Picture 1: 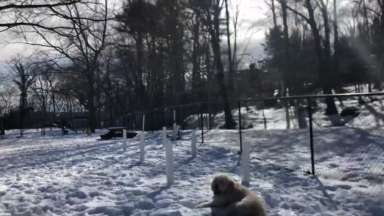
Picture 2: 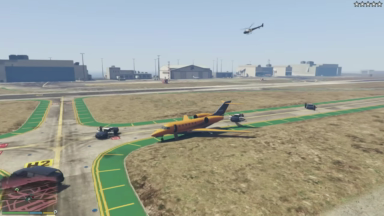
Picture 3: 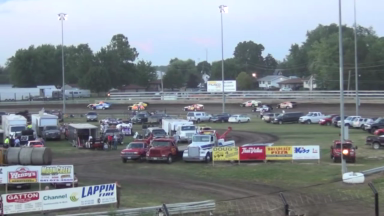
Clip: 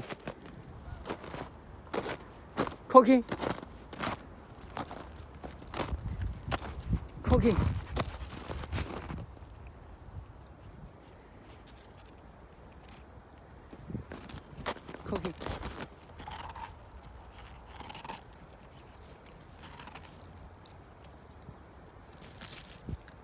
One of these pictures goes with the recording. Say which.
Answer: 1